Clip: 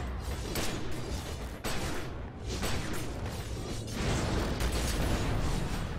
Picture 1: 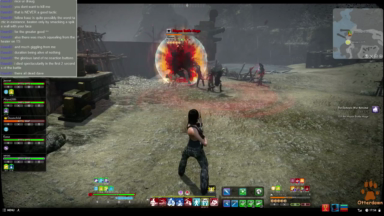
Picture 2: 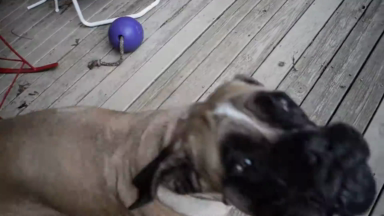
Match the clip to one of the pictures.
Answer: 1